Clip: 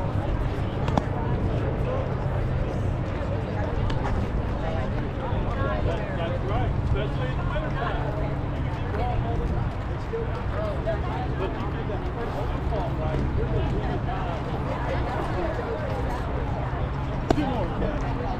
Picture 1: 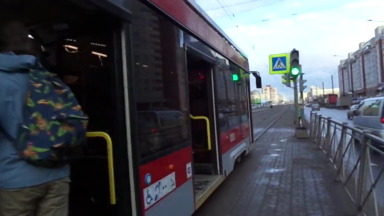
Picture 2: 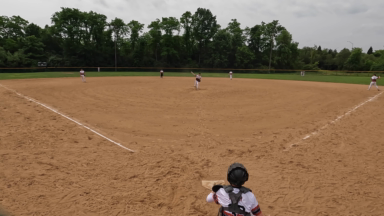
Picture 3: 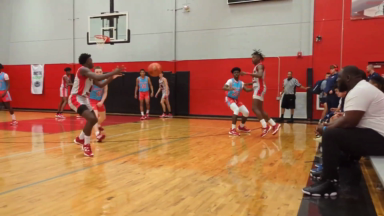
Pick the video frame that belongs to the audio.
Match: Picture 2